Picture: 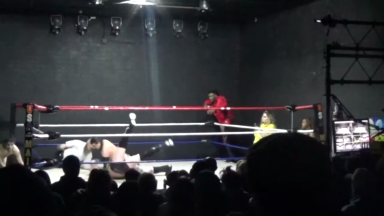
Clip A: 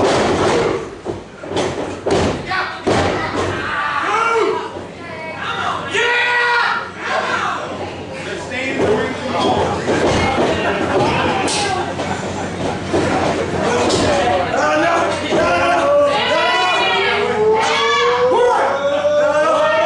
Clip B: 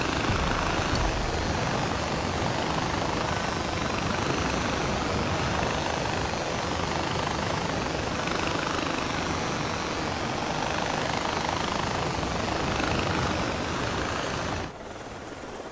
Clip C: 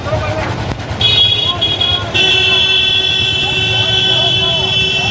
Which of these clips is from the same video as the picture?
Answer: A